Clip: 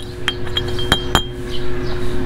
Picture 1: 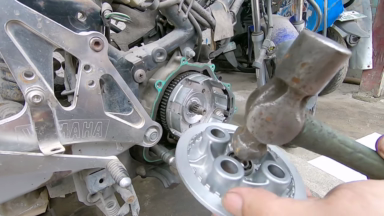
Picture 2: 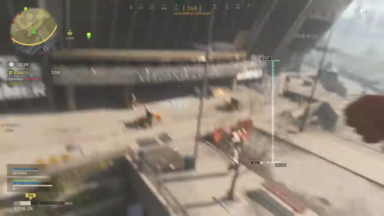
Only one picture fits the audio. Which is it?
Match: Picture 1